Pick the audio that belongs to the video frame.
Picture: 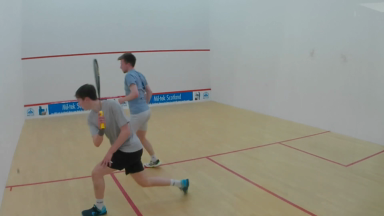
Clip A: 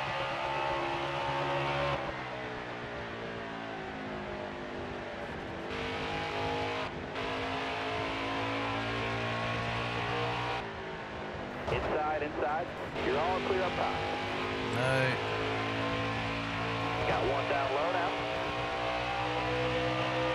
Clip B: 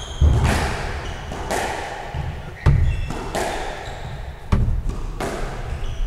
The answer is B